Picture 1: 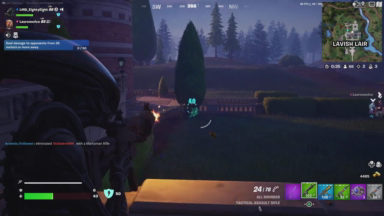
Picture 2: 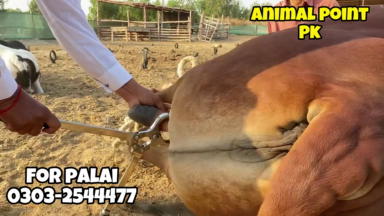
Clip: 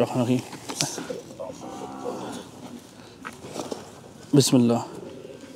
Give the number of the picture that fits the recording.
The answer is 2